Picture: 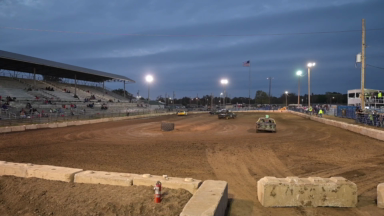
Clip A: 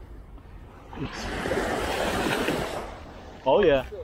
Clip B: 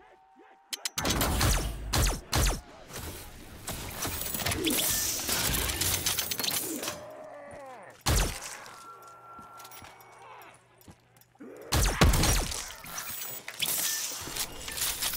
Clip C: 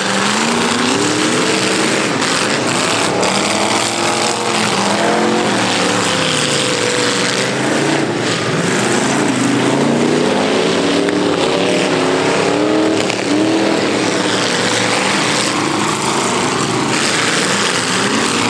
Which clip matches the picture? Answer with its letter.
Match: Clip C